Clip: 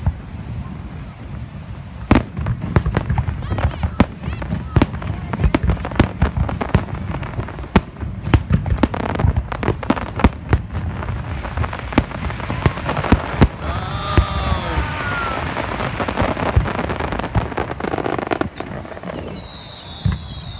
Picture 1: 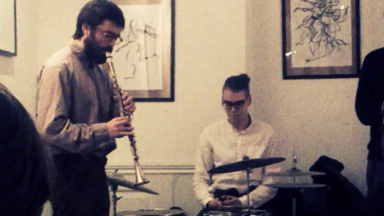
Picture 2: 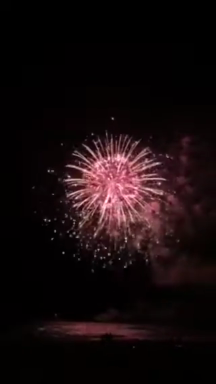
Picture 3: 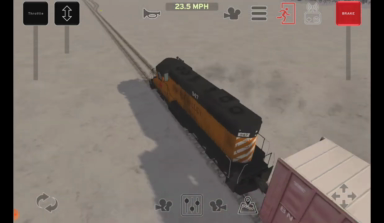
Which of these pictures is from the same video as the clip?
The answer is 2